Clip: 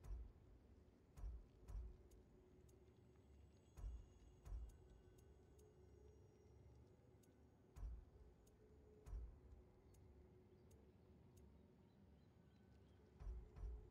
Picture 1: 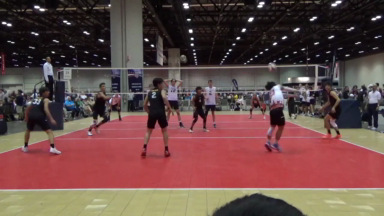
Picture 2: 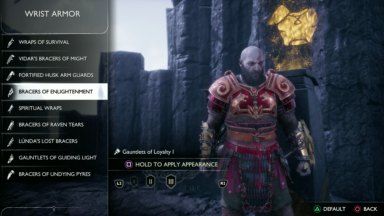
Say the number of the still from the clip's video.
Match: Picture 2